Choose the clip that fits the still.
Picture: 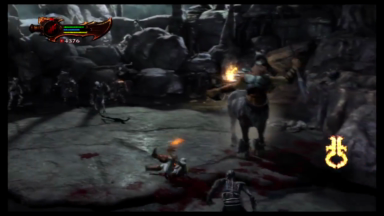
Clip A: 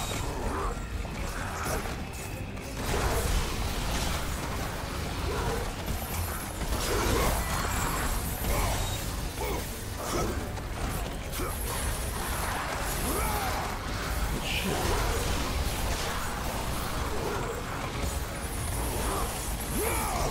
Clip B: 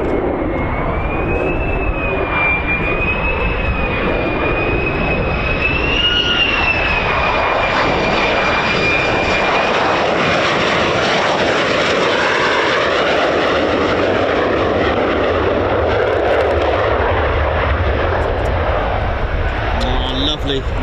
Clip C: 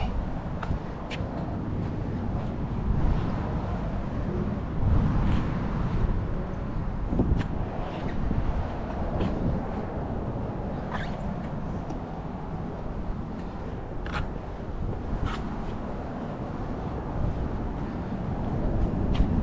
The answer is A